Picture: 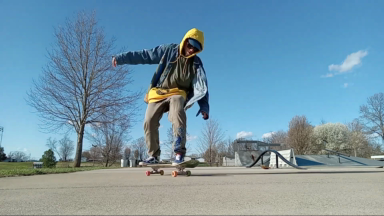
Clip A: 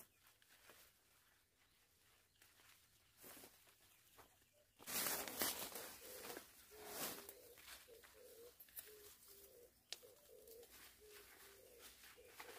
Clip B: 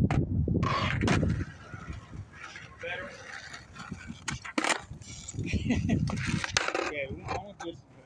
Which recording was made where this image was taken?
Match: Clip B